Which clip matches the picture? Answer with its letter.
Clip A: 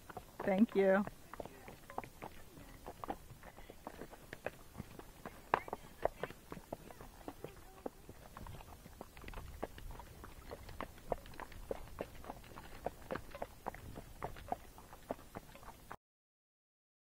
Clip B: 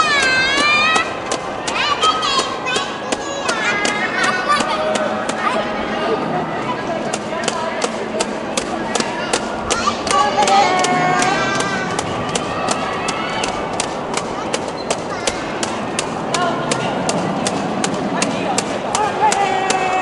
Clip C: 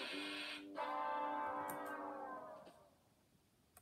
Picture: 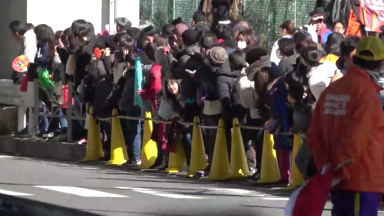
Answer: B